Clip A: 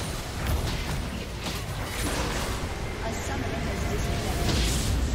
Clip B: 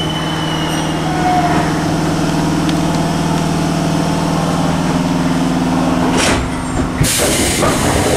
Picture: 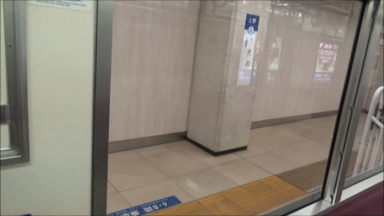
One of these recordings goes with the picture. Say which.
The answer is B